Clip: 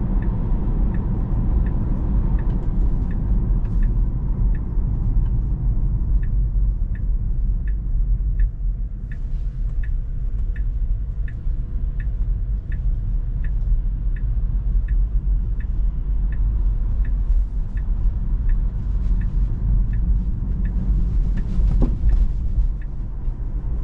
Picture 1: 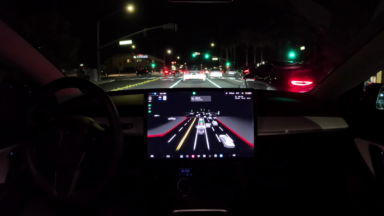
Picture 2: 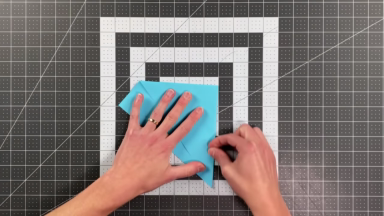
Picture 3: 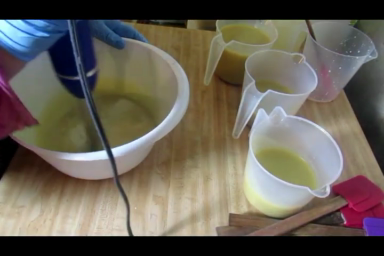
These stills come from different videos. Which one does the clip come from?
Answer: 1